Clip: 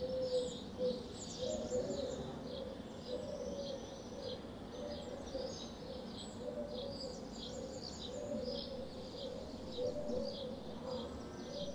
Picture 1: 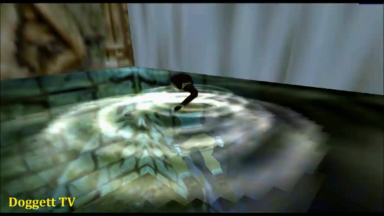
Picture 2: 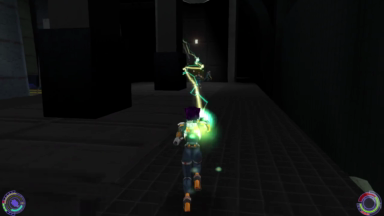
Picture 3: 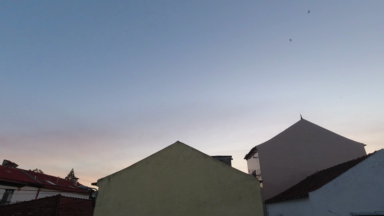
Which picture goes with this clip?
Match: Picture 3